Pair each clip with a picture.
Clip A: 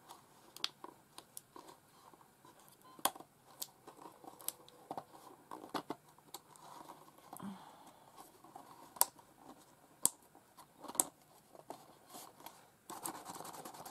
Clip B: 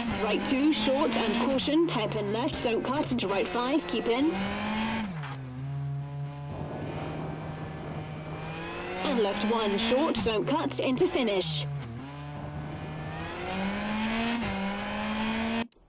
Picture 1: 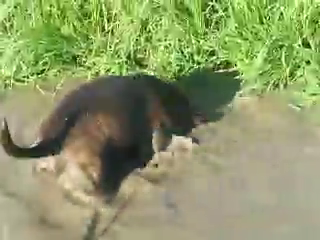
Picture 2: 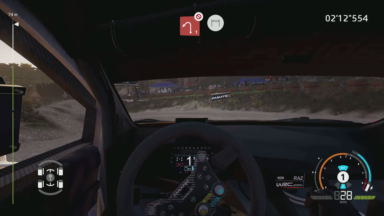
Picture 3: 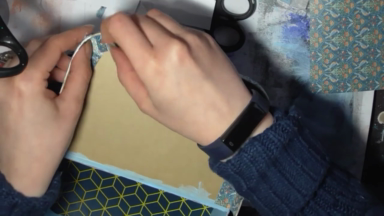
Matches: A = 3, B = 2